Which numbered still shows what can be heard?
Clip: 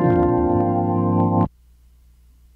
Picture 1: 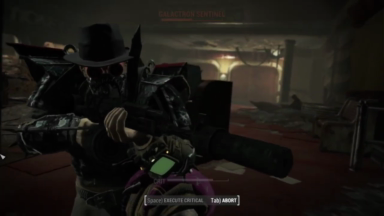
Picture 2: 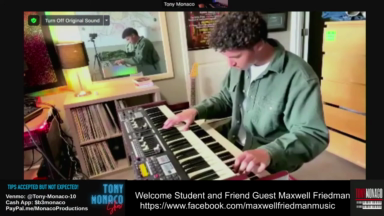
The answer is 2